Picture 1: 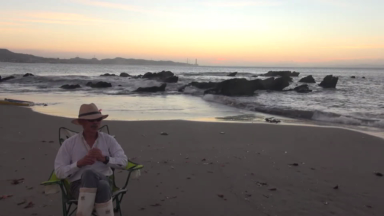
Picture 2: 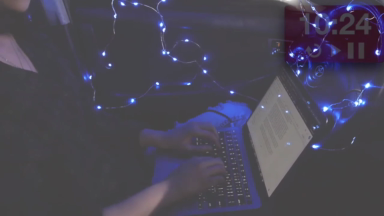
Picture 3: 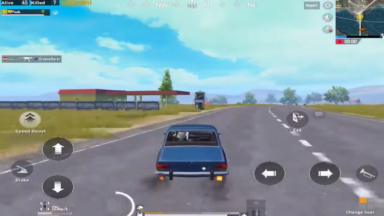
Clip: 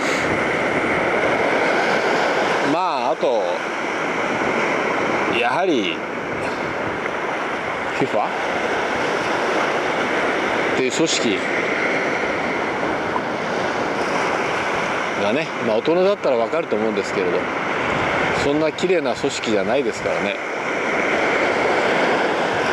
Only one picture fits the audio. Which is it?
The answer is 1